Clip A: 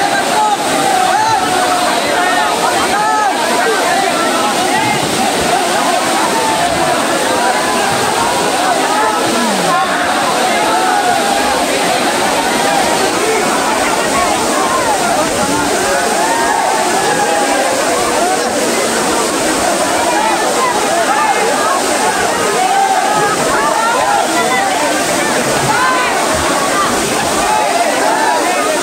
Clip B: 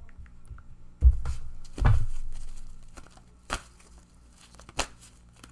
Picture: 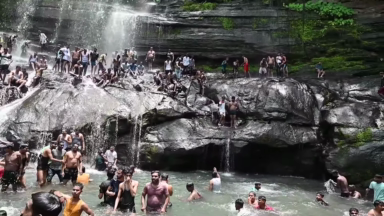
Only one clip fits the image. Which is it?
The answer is A